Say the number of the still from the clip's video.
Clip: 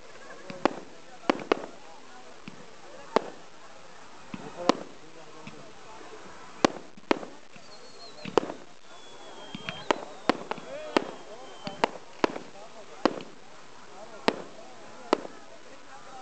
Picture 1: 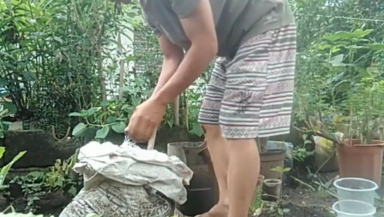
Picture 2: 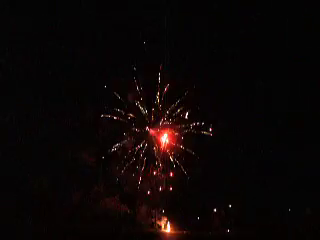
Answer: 2